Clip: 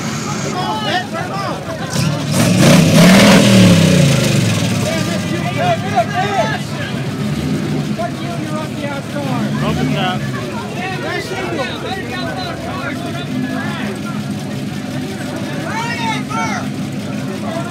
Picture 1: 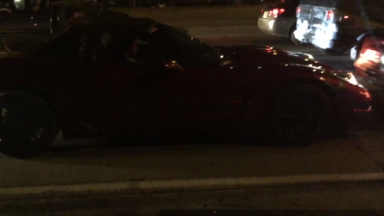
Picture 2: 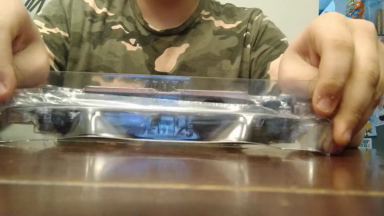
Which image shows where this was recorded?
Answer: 1